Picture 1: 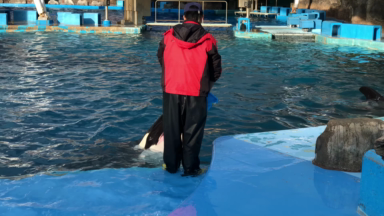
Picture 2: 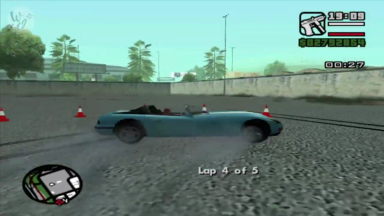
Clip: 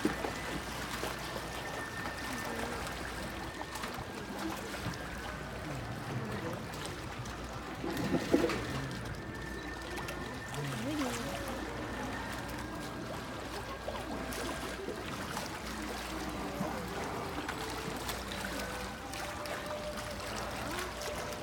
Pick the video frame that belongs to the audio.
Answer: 1